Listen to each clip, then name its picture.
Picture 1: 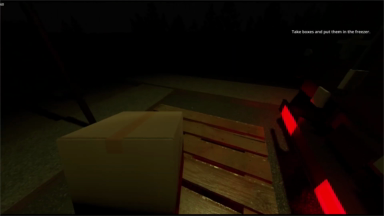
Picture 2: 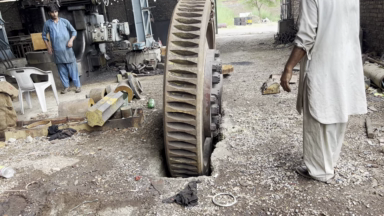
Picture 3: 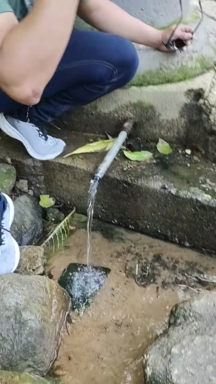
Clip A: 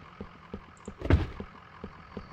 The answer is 1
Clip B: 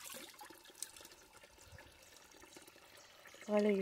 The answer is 3